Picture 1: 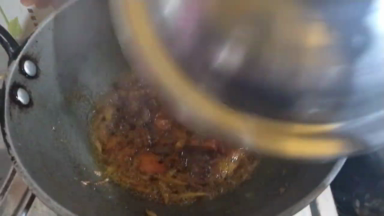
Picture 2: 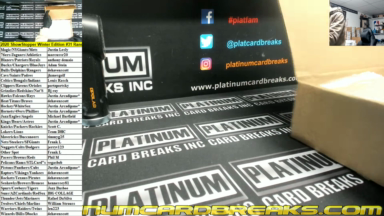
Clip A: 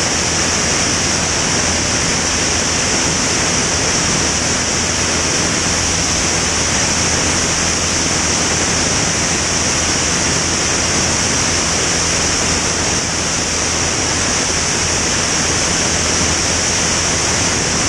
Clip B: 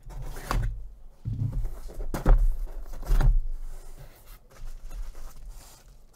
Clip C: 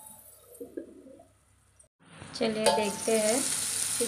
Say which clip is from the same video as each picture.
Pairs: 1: C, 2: B